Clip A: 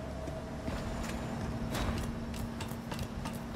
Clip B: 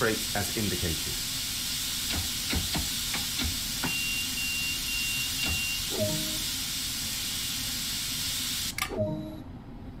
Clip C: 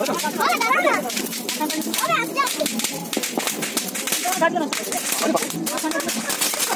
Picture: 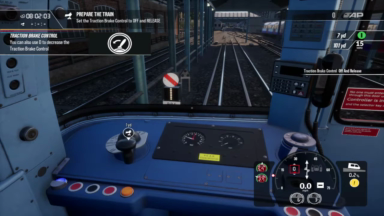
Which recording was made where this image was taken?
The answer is B